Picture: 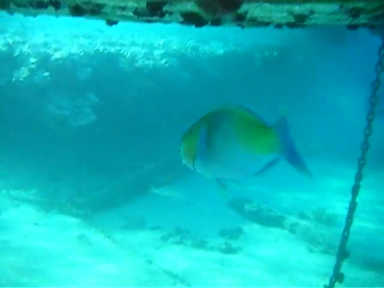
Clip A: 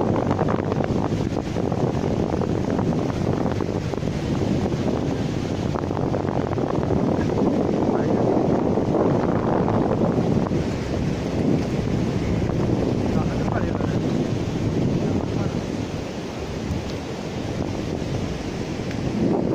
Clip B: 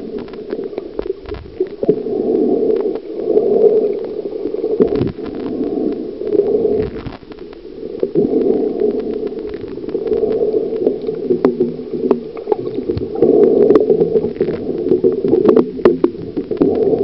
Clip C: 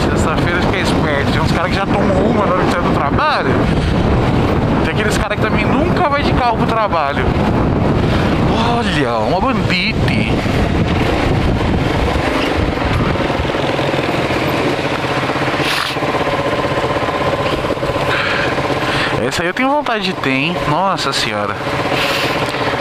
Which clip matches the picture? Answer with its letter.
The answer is B